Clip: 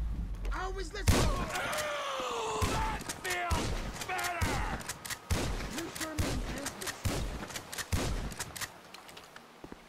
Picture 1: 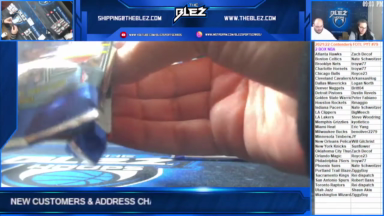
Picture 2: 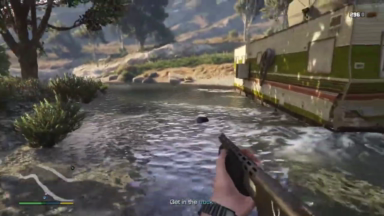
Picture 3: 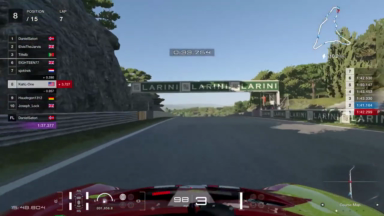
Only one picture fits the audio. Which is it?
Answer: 2